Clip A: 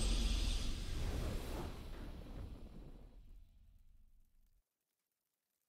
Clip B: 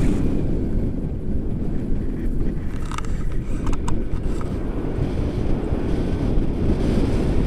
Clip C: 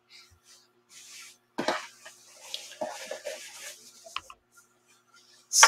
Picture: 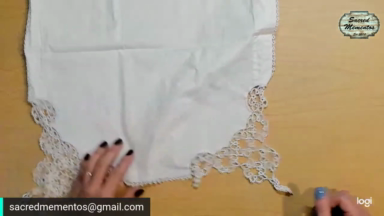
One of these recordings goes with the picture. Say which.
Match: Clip C